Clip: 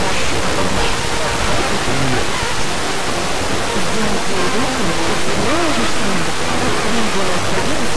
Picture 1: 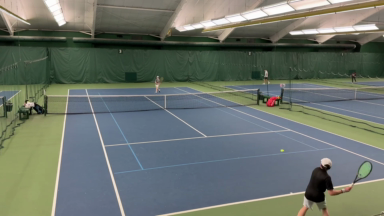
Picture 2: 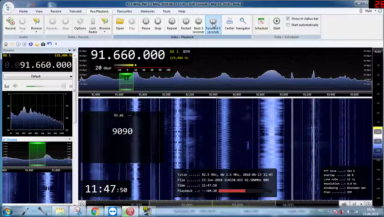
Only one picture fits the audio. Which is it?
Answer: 2